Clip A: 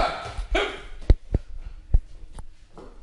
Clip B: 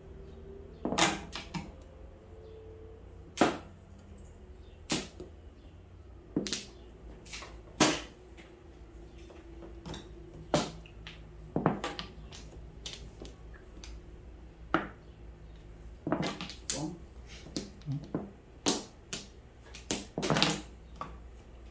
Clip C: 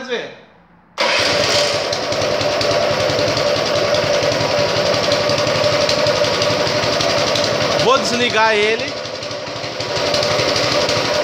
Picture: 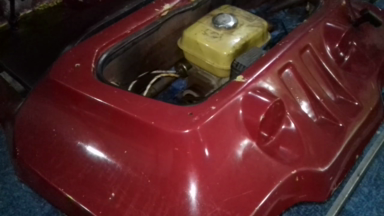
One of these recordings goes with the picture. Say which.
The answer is C